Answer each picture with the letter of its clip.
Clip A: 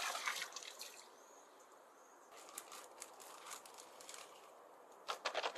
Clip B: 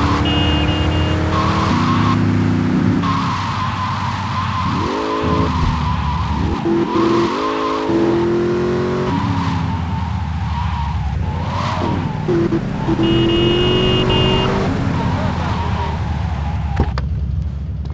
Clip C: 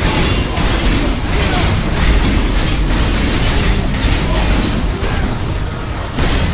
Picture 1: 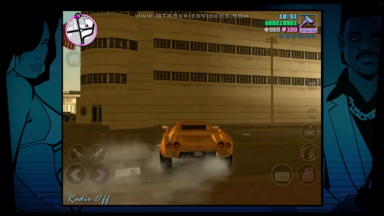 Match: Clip B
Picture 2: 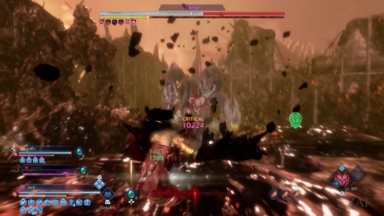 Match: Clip C